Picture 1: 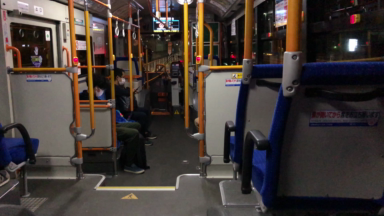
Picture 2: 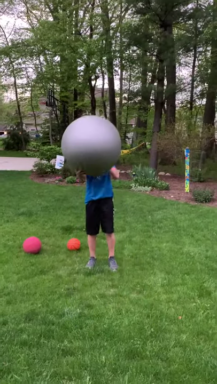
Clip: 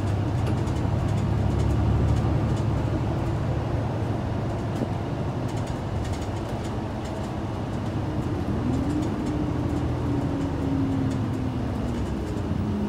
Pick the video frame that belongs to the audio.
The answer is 1